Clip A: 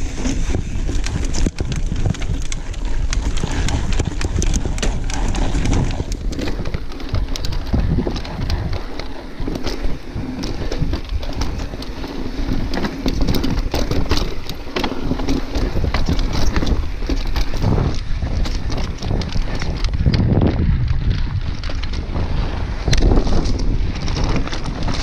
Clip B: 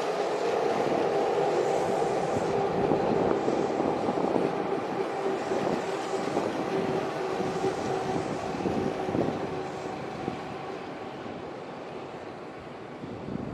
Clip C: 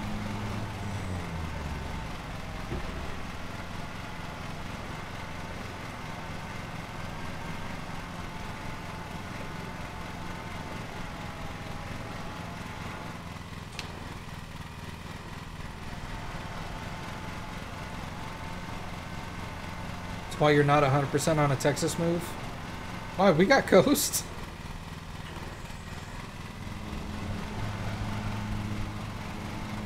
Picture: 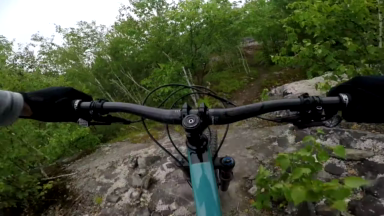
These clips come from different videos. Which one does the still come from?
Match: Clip A